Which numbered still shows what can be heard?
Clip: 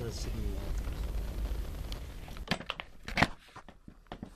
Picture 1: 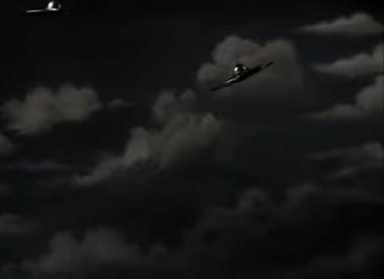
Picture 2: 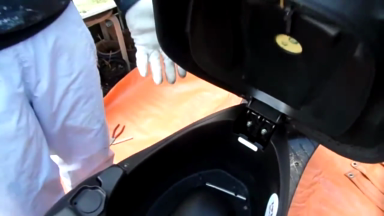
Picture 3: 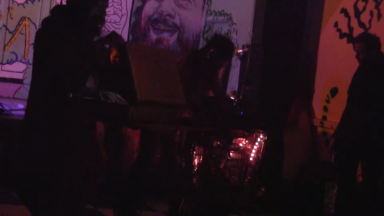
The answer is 2